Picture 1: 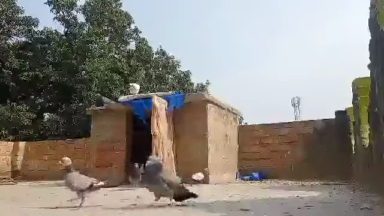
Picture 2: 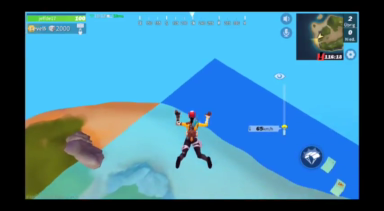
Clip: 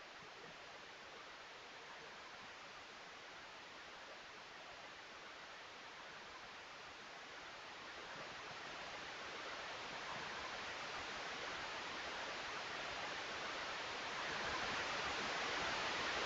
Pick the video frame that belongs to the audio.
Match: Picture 2